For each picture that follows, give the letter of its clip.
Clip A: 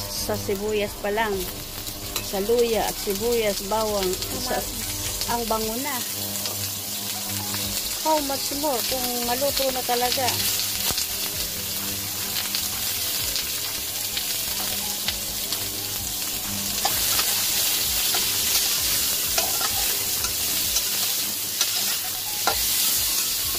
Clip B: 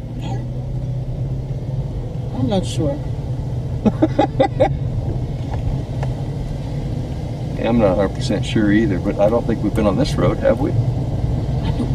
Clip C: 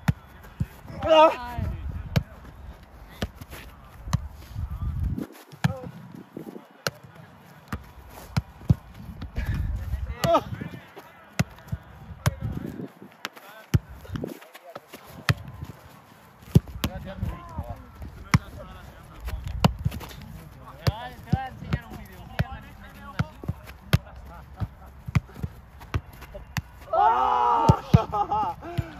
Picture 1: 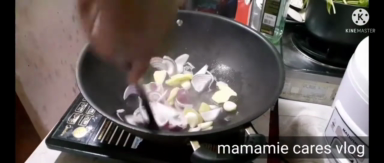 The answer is A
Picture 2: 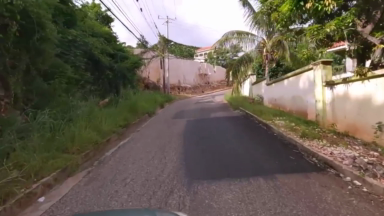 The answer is B